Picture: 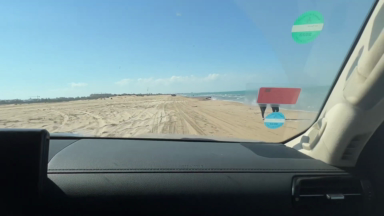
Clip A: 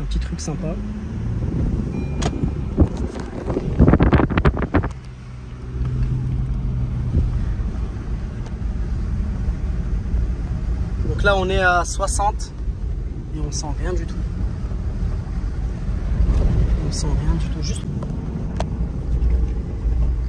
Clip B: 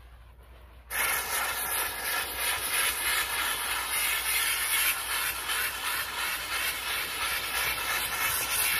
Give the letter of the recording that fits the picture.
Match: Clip A